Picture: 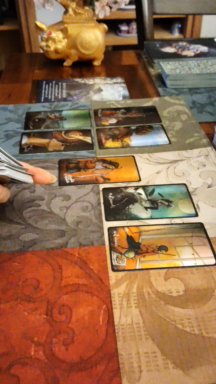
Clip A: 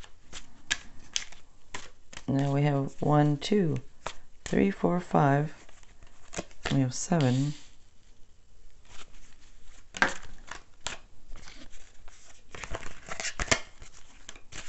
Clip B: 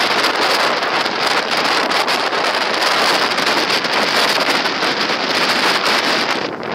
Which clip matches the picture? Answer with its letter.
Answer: A